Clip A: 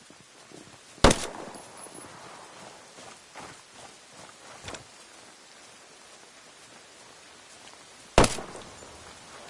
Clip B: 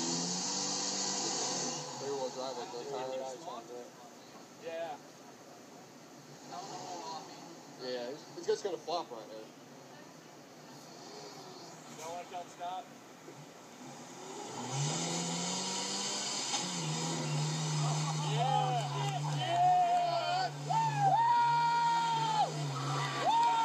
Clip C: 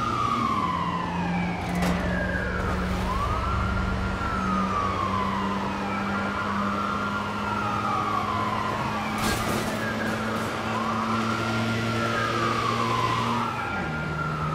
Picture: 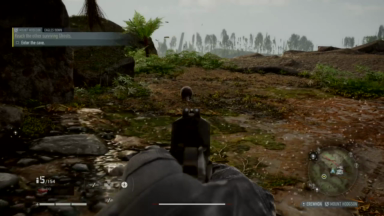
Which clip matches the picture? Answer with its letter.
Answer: A